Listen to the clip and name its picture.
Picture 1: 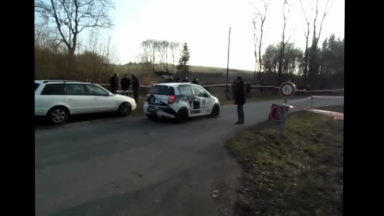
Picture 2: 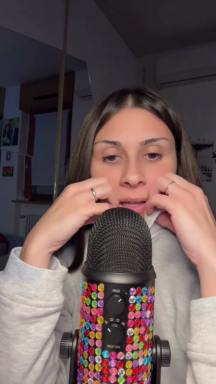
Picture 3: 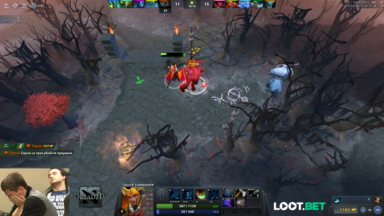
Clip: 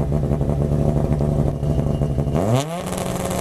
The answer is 1